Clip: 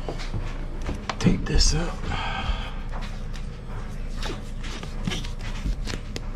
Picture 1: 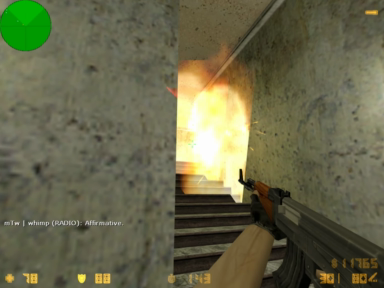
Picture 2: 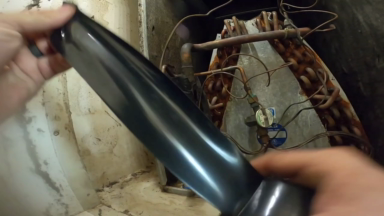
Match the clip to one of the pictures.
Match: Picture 2